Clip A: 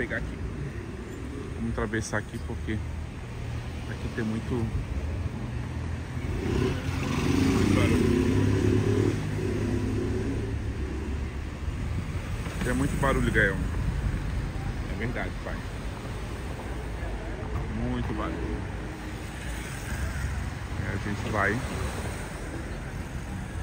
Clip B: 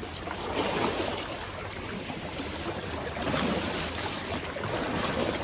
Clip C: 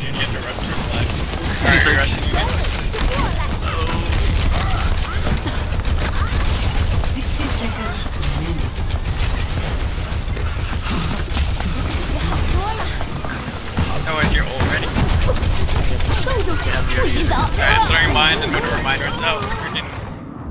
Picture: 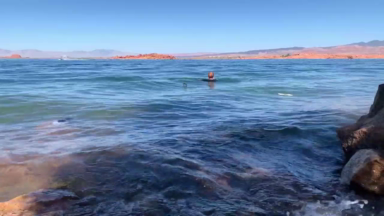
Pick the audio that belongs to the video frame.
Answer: B